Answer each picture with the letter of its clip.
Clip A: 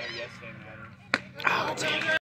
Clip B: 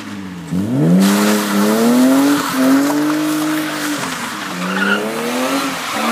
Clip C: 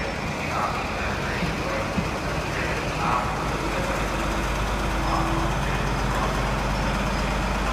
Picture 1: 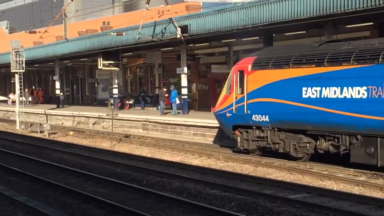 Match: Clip C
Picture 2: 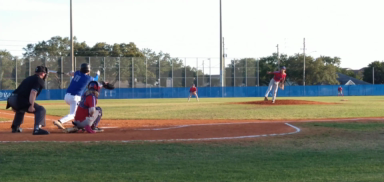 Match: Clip A